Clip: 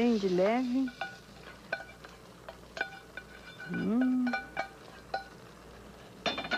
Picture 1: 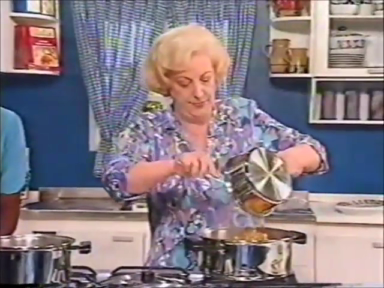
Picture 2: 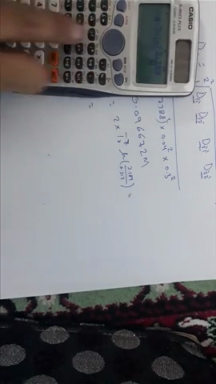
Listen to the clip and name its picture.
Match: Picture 1